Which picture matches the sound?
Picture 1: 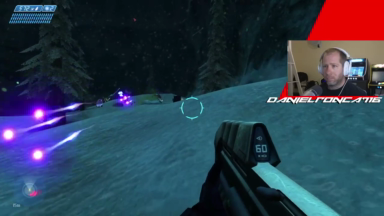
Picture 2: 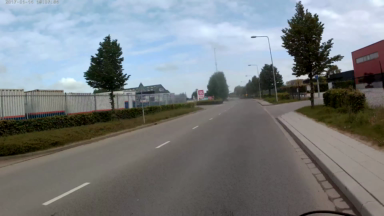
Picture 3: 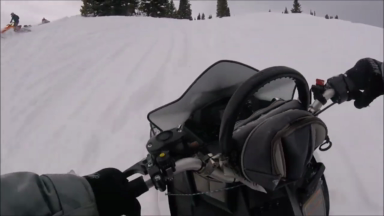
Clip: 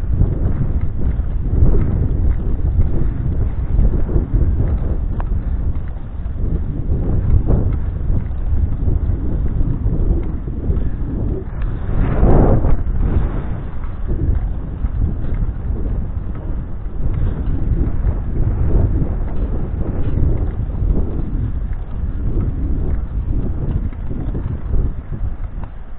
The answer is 2